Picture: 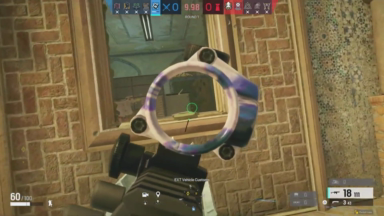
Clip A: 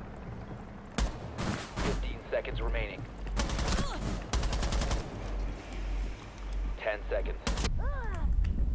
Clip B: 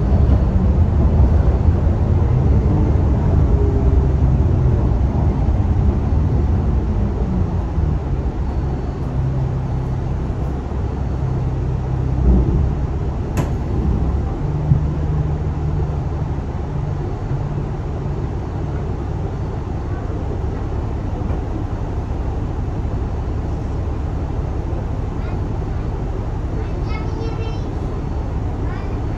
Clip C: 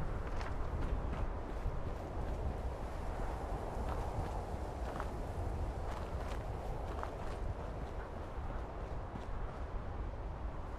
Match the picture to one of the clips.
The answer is A